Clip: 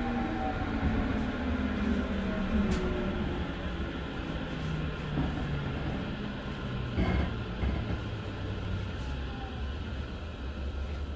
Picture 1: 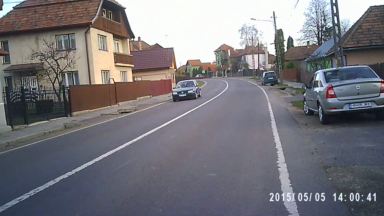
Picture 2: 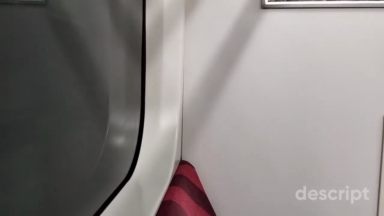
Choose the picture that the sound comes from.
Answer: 2